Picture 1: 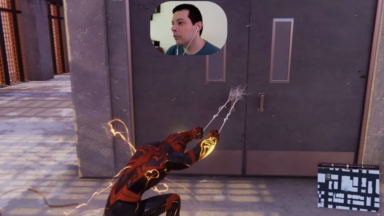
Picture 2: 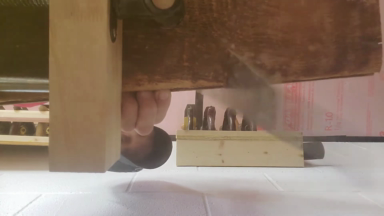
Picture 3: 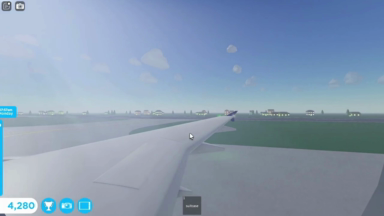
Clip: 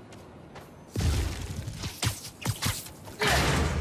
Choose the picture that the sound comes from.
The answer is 1